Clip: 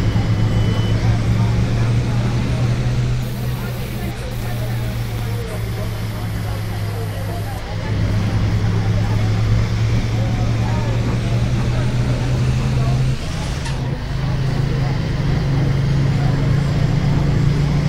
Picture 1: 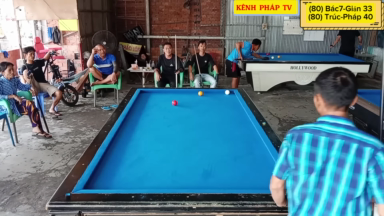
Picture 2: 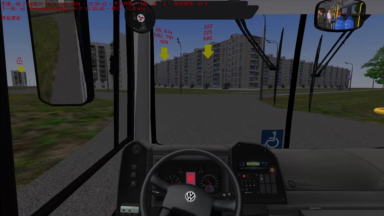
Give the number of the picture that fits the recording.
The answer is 2